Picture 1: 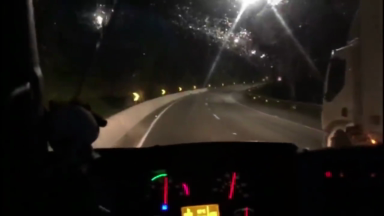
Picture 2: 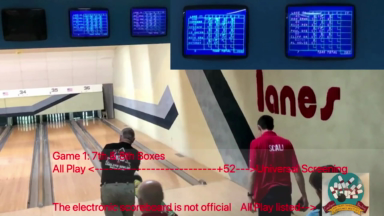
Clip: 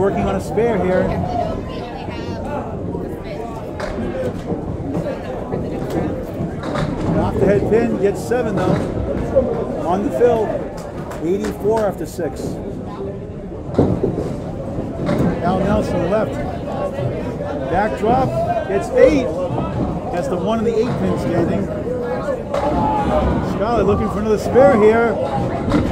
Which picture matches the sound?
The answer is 2